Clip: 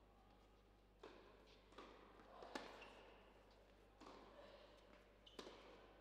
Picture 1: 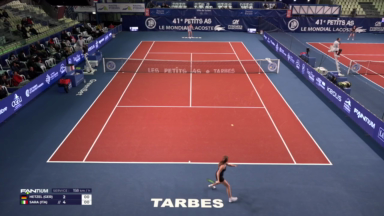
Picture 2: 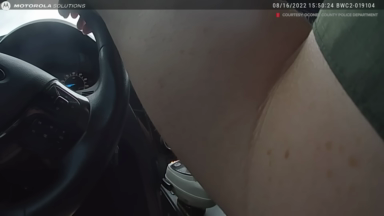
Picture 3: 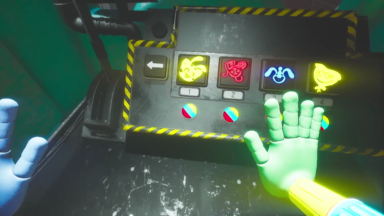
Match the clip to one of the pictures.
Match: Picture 1